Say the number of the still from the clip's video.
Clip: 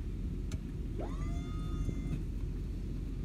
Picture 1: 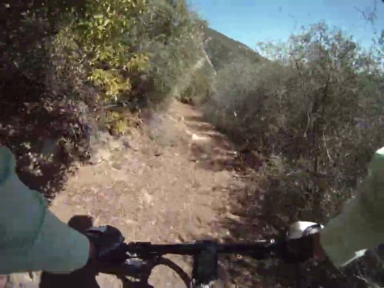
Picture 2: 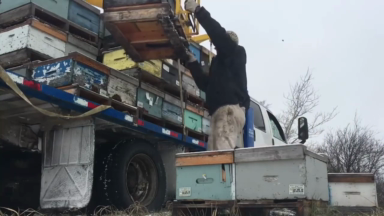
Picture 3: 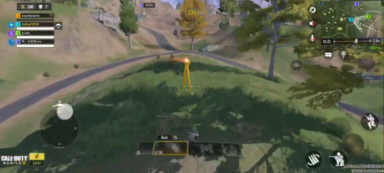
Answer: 2